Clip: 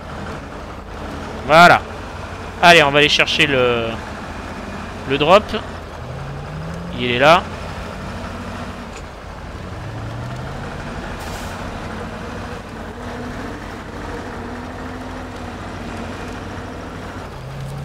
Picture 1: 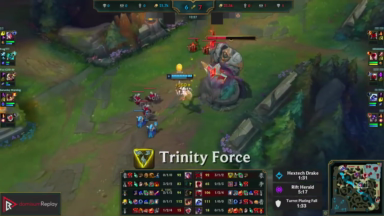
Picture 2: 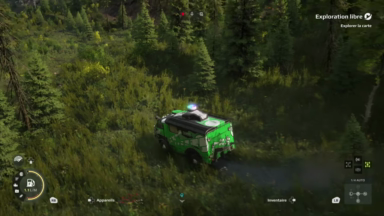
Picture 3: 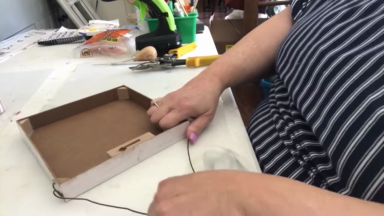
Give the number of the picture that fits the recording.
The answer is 2